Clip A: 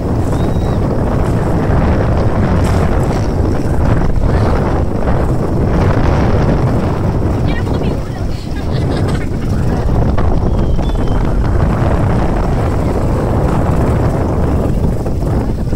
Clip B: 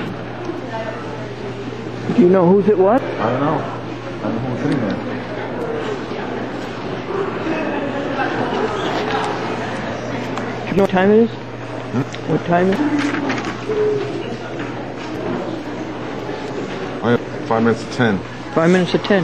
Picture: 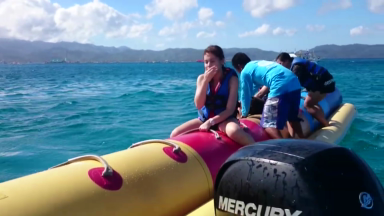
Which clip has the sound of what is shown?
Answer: A